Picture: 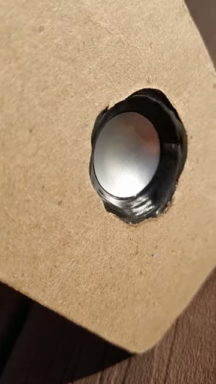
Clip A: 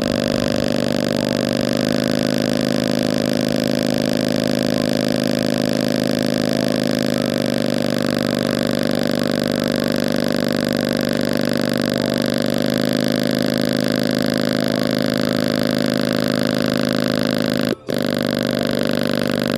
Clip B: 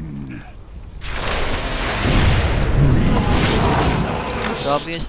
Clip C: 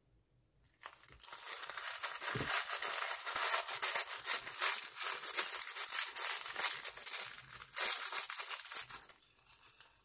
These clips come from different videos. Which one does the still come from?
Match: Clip A